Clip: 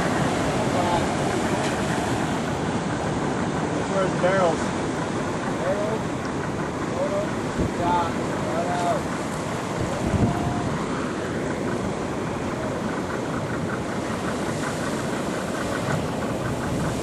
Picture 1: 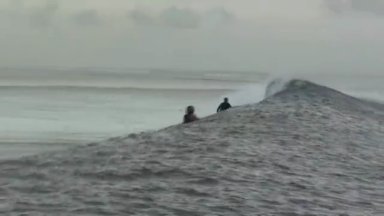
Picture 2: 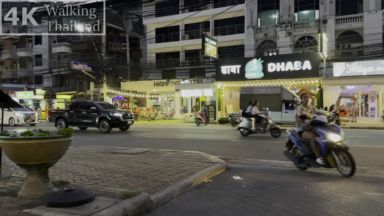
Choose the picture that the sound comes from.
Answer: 1